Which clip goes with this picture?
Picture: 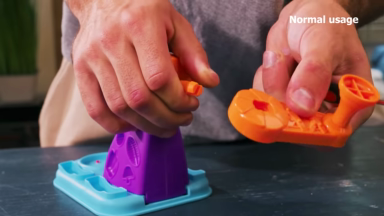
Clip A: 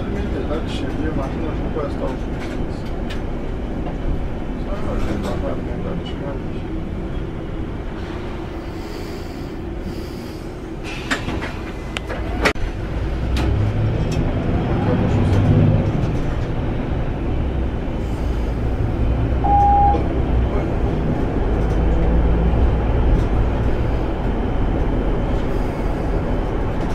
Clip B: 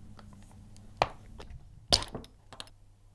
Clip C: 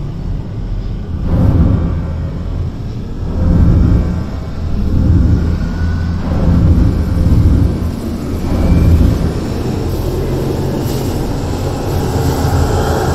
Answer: B